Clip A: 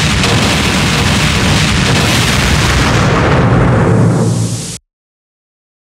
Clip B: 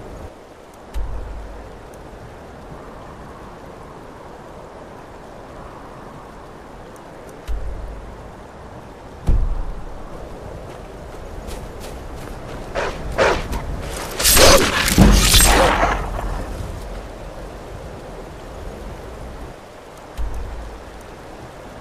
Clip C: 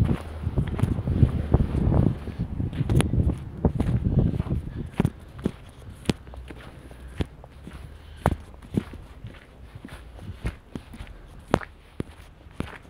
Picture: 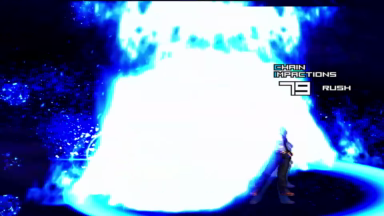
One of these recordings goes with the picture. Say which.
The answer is A